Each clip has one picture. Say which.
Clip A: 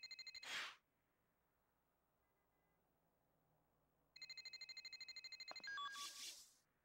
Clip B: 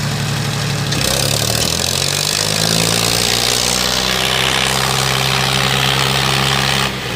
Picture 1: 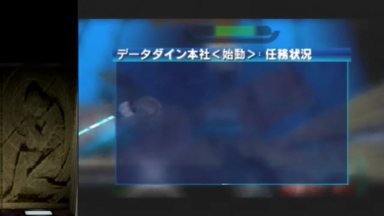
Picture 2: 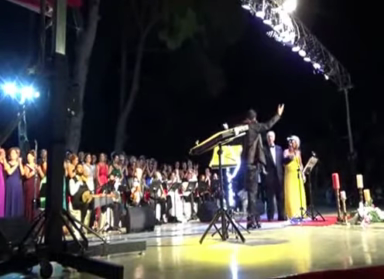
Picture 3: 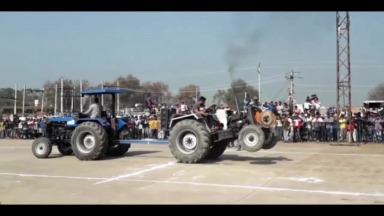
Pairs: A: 1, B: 3